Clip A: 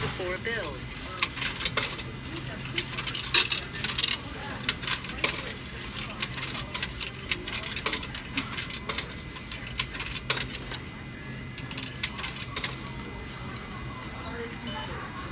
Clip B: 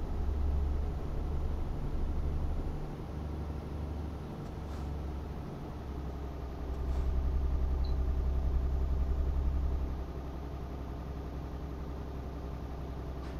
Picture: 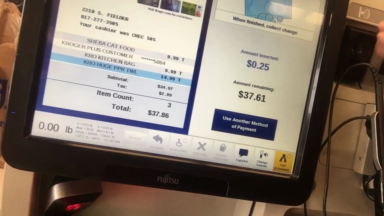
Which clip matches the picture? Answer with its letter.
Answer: A